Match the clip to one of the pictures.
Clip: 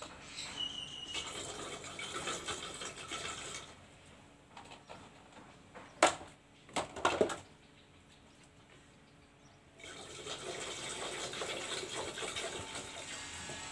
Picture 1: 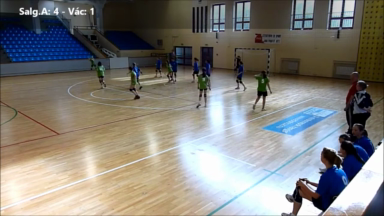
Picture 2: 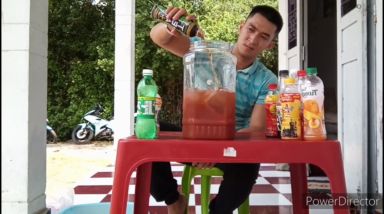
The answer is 2